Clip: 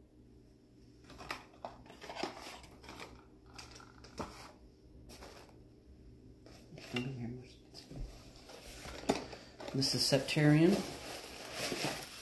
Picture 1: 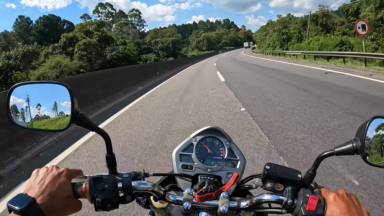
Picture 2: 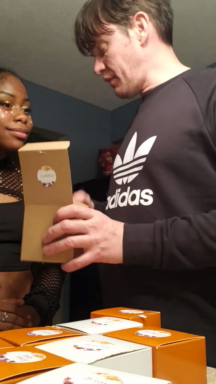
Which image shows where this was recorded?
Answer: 2